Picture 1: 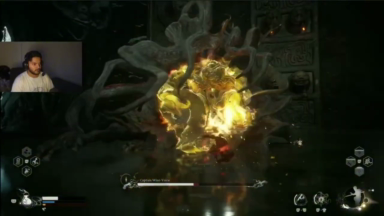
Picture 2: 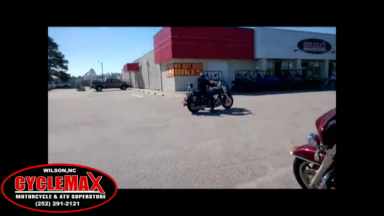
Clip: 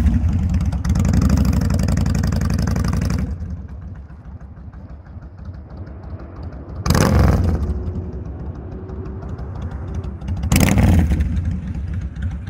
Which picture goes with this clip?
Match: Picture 2